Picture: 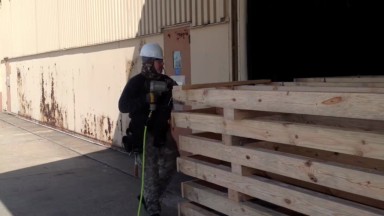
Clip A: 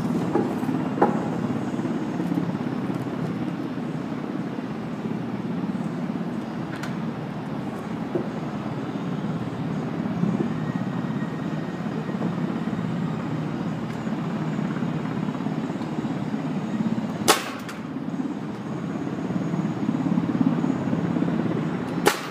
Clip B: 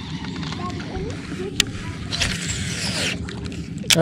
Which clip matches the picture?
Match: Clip A